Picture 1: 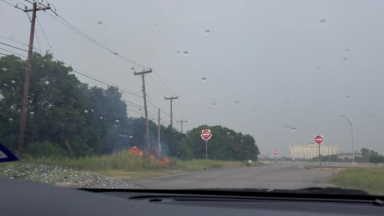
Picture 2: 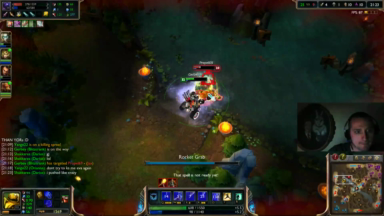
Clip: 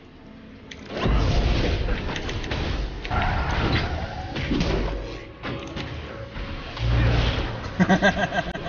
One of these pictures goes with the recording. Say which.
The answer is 2